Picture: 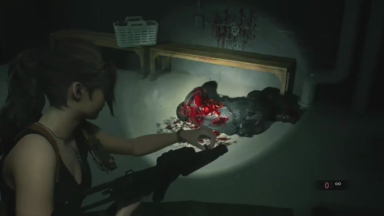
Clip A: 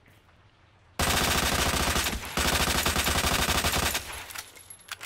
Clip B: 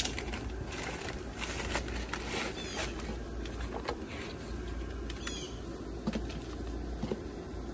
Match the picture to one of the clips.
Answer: A